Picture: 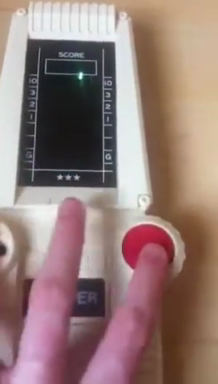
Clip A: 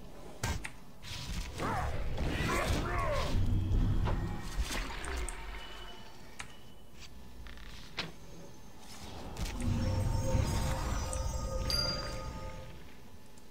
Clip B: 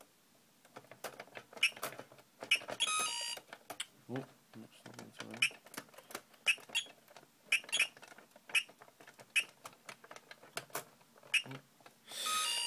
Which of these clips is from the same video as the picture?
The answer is B